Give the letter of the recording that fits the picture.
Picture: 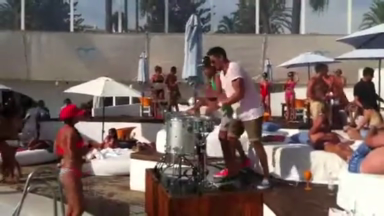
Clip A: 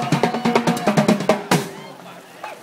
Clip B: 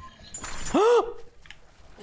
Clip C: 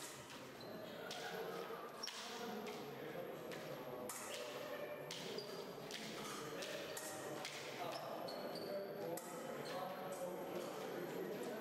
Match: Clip A